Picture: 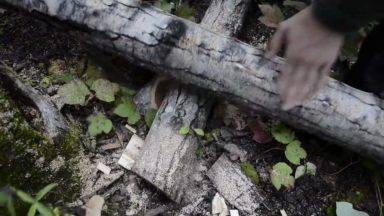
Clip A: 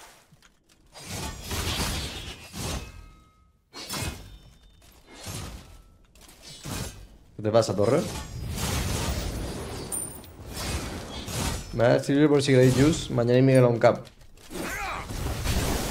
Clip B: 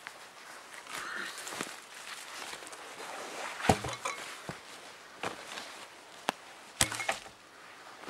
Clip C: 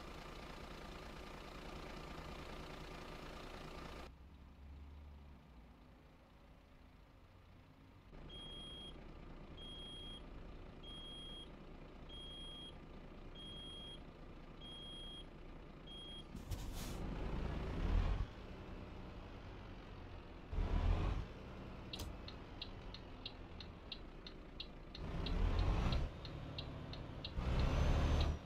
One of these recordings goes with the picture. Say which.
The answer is B